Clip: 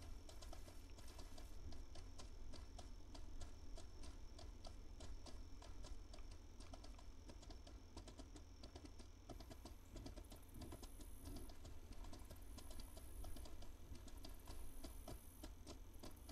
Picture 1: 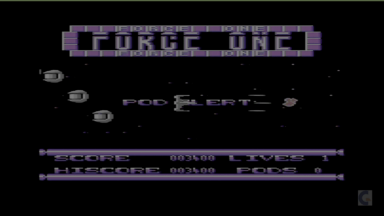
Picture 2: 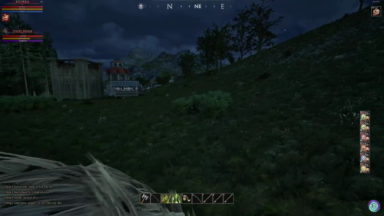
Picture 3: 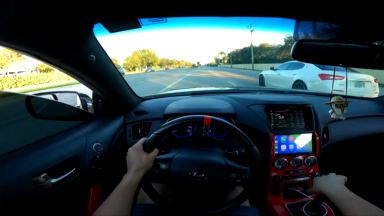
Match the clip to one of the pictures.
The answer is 2